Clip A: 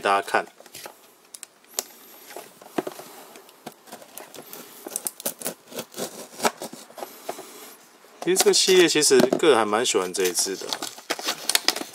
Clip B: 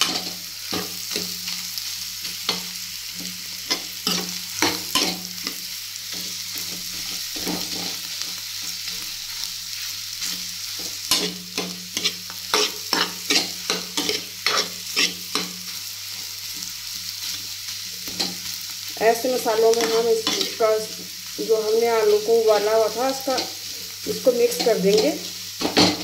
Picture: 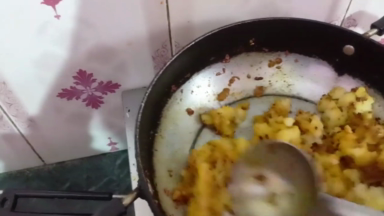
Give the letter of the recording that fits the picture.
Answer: B